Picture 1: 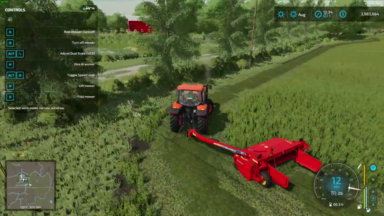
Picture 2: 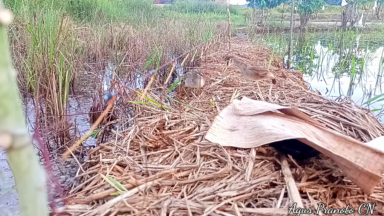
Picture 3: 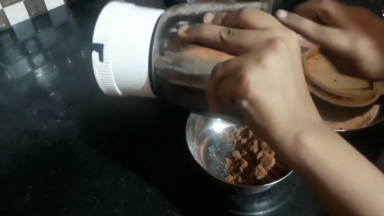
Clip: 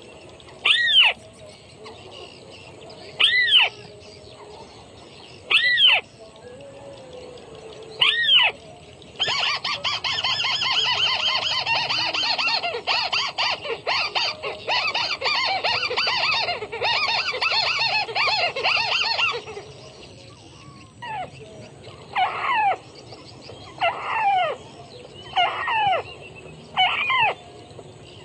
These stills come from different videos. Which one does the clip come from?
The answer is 2